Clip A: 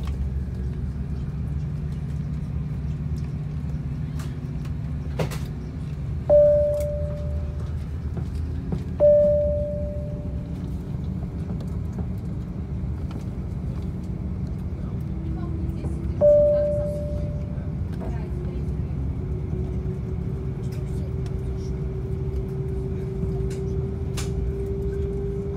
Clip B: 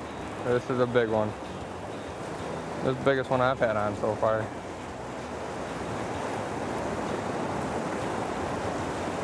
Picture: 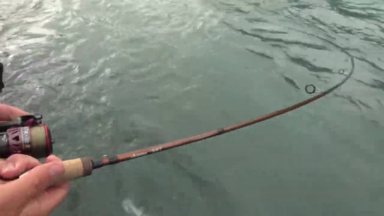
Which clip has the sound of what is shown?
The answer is B